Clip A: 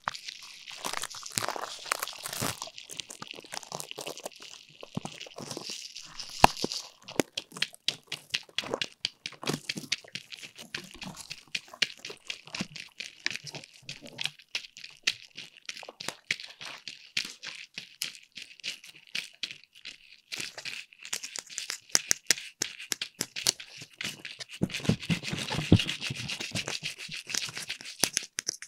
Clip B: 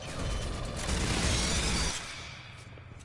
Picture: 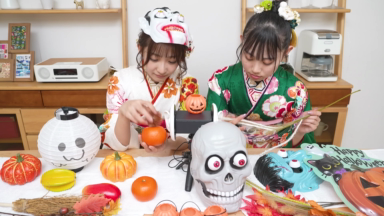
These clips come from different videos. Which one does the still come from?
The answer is A